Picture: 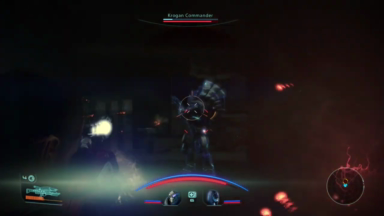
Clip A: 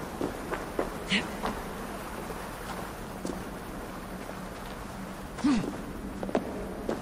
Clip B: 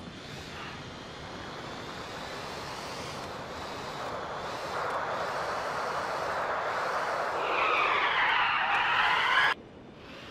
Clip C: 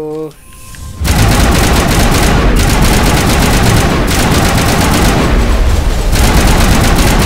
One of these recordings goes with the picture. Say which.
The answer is C